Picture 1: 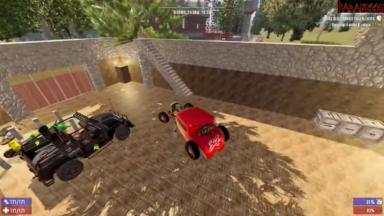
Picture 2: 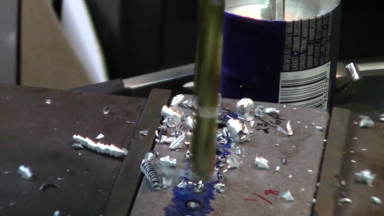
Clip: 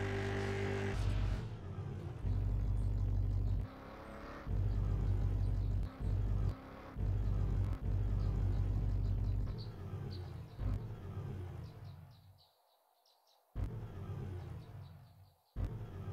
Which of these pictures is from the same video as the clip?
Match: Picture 1